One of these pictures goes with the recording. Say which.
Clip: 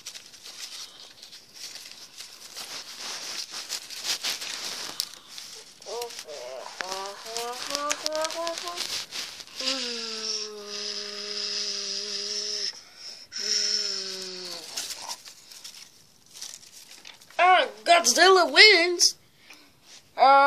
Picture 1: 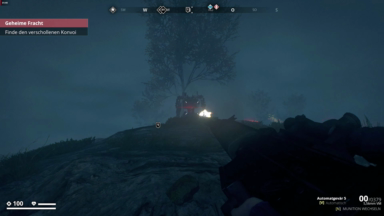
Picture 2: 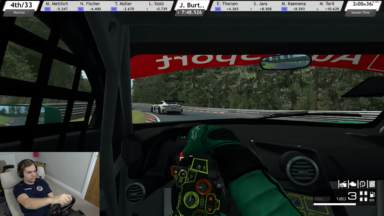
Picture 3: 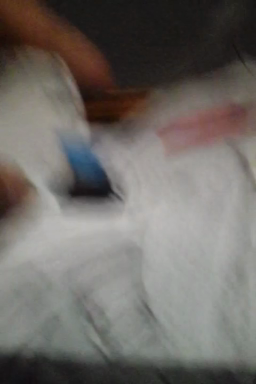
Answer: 3